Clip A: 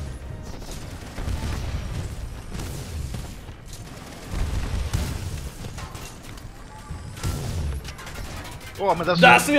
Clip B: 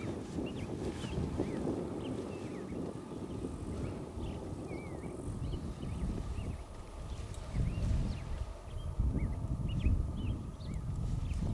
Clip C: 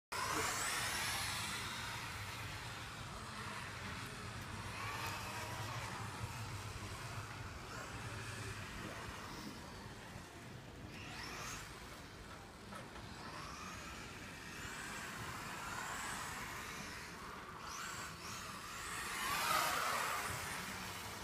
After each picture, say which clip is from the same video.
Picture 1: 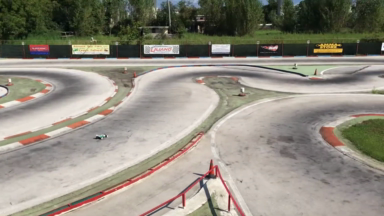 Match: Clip C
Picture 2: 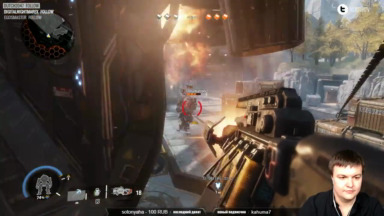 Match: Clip A